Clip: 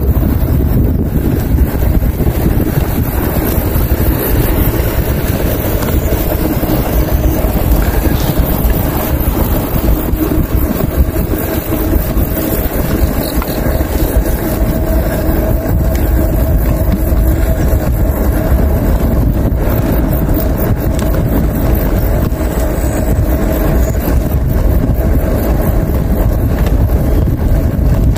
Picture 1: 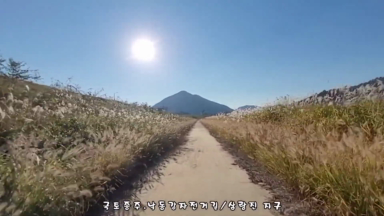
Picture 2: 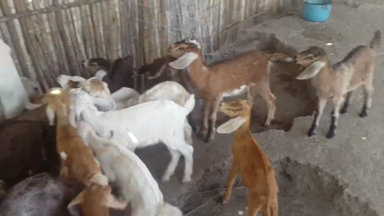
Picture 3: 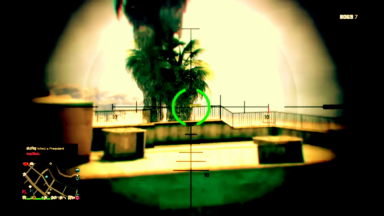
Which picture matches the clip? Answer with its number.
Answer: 1